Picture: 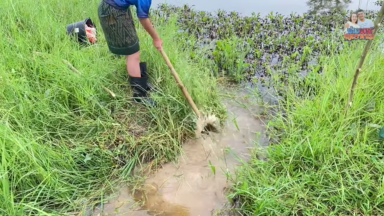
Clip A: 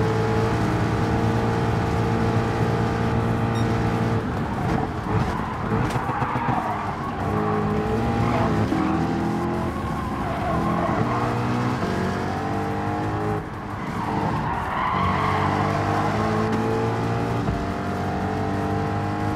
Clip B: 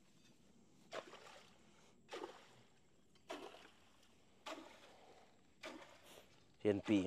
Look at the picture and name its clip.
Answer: B